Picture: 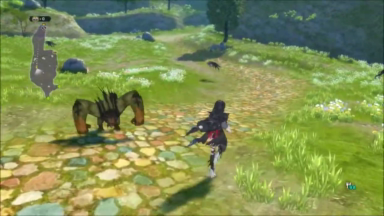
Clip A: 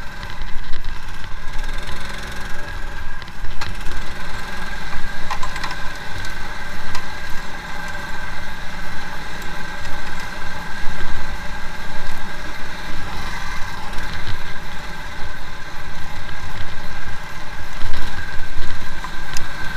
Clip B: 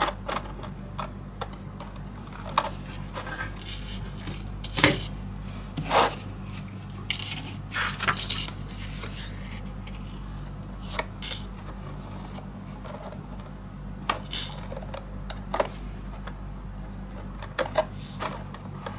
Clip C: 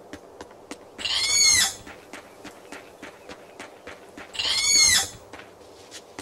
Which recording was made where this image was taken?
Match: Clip C